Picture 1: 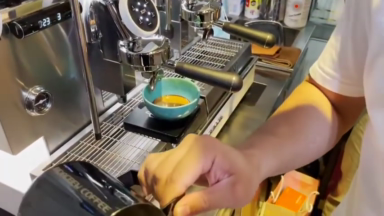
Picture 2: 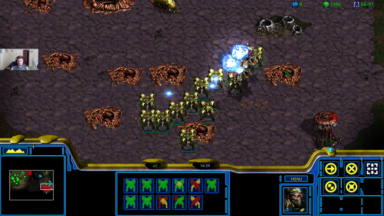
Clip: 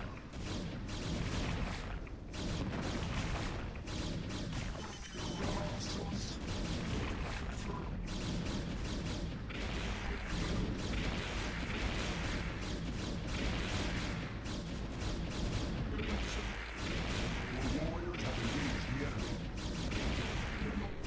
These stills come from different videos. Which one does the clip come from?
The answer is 2